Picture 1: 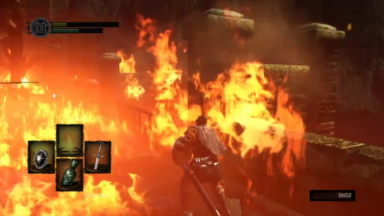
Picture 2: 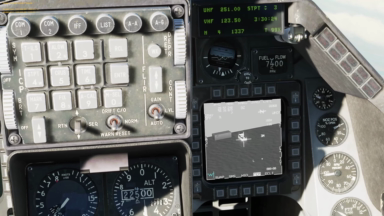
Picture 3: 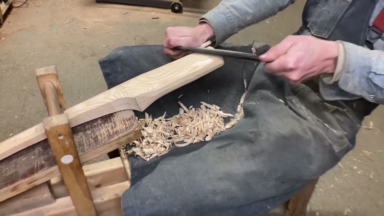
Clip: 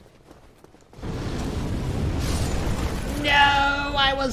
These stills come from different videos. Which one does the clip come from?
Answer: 1